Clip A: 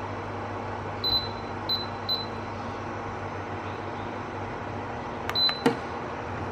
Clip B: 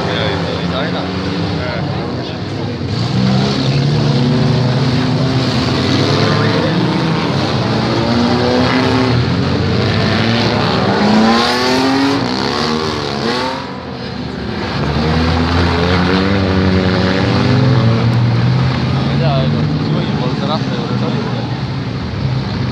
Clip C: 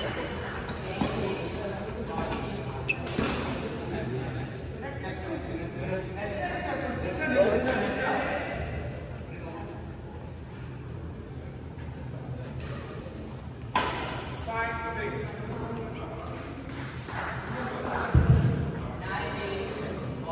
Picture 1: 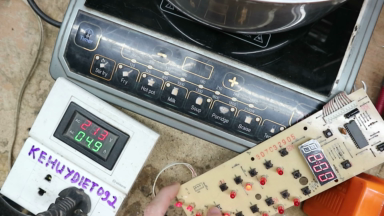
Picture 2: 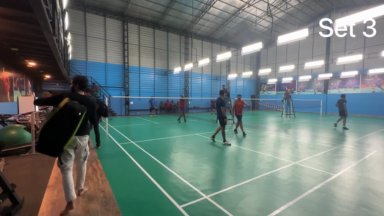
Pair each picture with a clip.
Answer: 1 A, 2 C